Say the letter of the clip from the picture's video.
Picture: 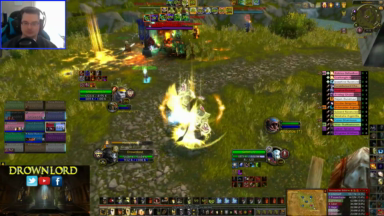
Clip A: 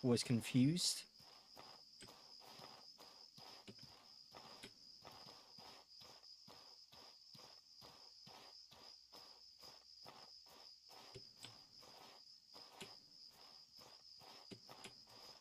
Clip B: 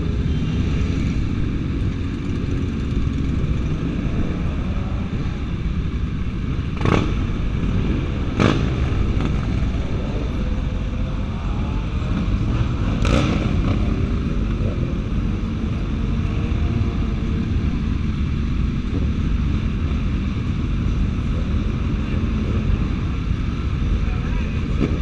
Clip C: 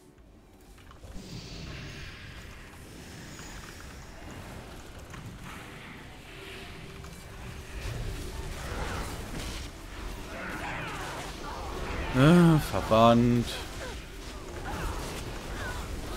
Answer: C